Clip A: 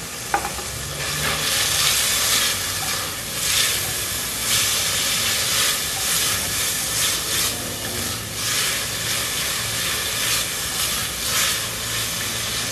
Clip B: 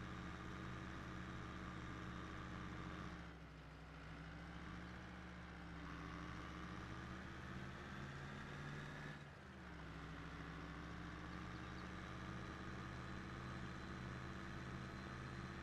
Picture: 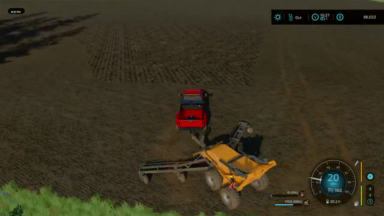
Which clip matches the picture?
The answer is B